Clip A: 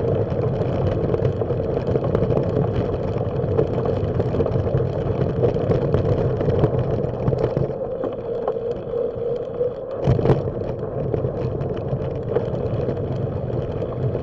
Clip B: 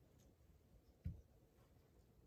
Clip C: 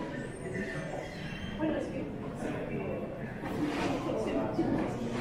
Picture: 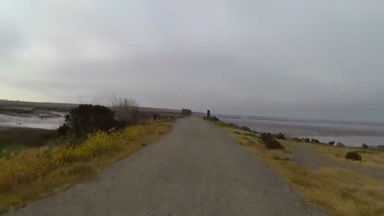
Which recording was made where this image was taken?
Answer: A